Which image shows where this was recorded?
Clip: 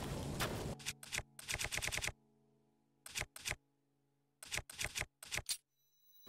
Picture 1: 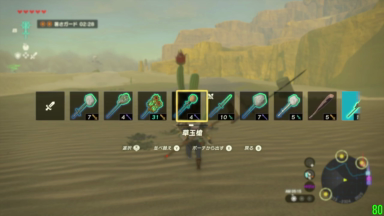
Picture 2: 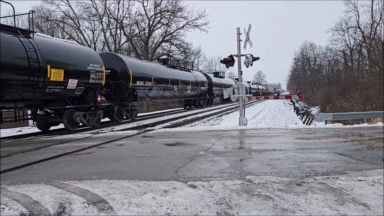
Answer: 1